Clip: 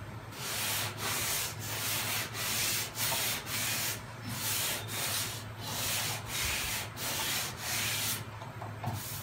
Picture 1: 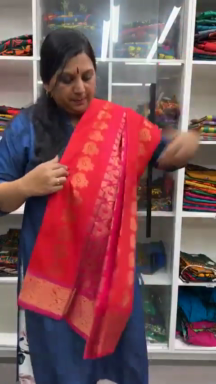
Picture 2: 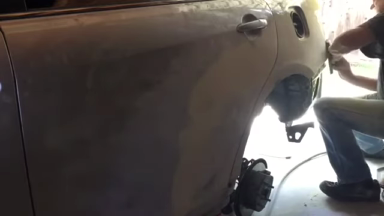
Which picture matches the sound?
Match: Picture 2